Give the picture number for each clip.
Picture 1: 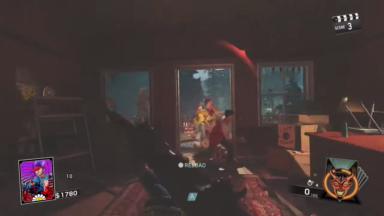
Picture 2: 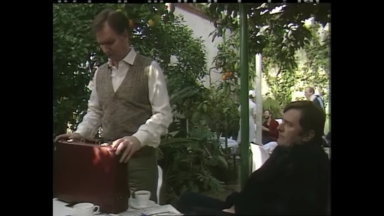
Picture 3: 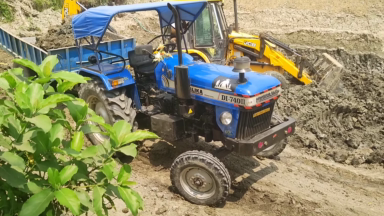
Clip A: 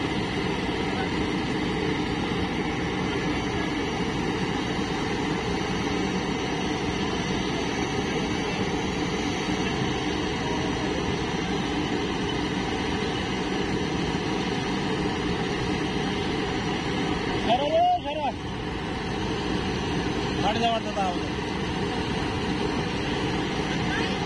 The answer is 3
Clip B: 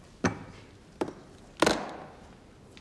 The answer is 2